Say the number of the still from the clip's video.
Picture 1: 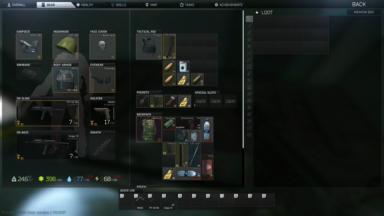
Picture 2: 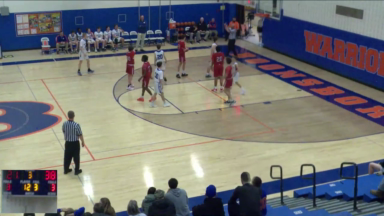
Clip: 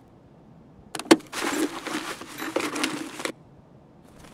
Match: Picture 1